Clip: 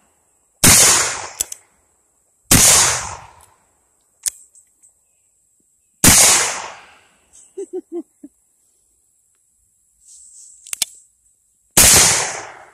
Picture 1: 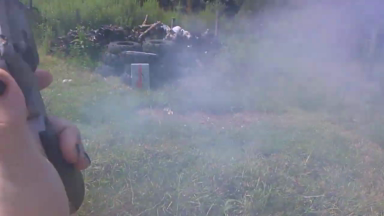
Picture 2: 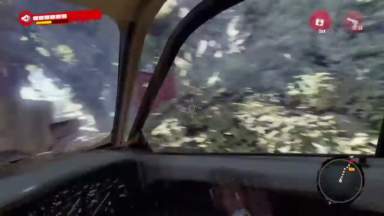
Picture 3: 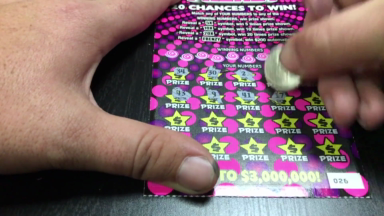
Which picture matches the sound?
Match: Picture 1